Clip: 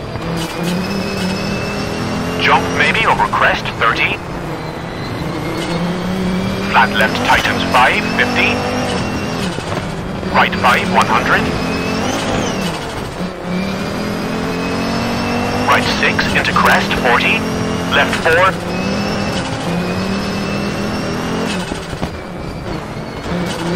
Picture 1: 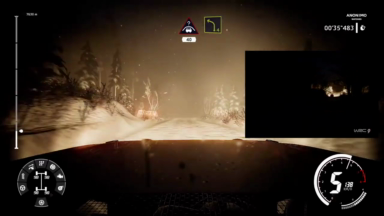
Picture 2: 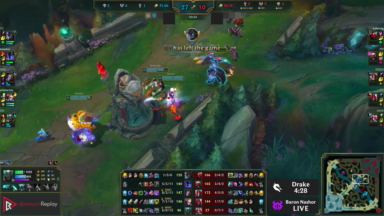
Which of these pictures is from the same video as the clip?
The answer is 1